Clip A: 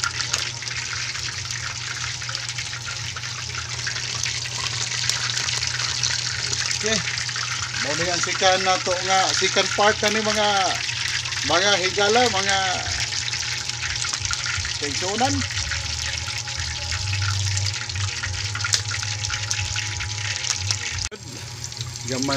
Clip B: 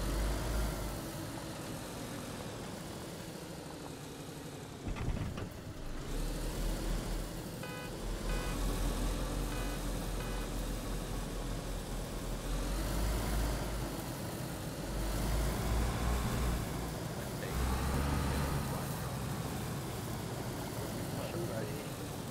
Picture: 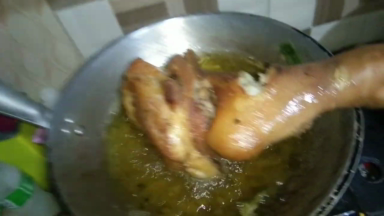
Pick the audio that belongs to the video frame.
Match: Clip A